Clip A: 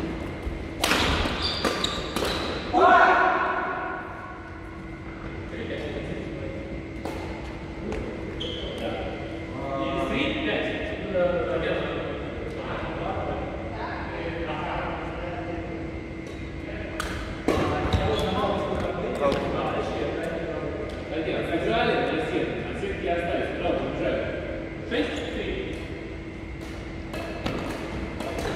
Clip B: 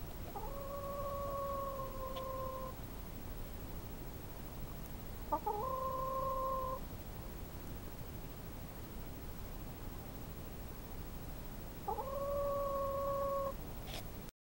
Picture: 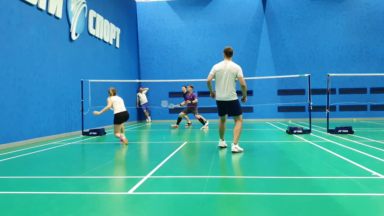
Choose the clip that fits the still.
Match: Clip A